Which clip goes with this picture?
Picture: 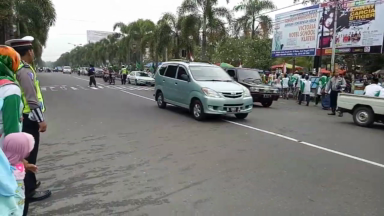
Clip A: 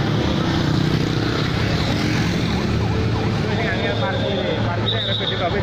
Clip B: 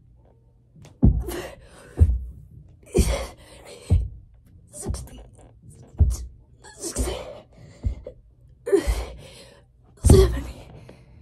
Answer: A